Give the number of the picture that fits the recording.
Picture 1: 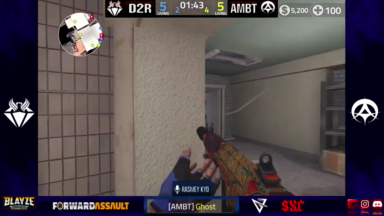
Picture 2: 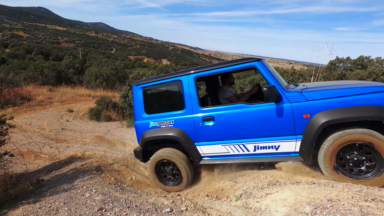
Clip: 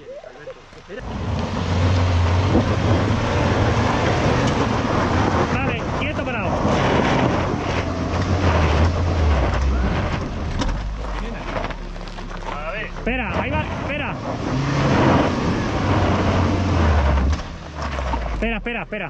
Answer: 2